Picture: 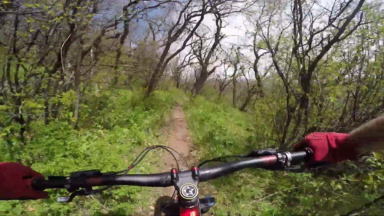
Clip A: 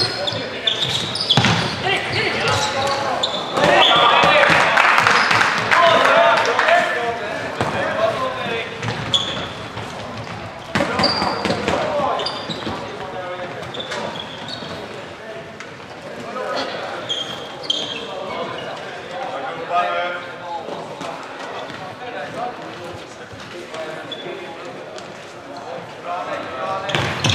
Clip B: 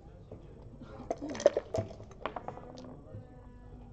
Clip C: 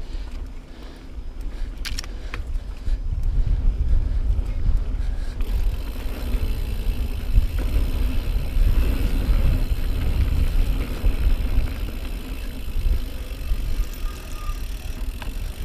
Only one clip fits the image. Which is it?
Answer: C